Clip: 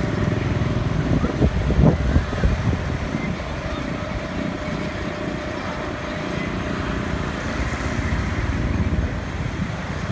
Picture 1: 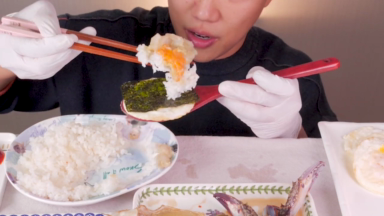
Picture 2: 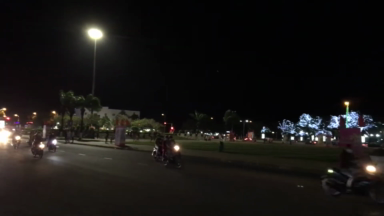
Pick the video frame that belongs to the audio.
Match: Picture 2